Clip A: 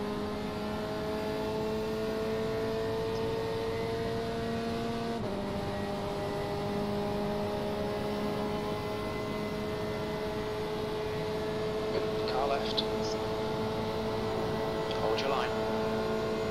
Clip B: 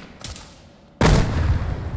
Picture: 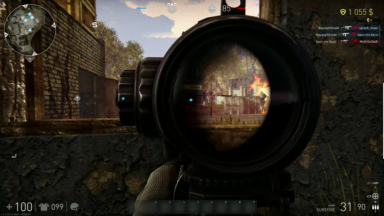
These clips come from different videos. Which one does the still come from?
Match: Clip B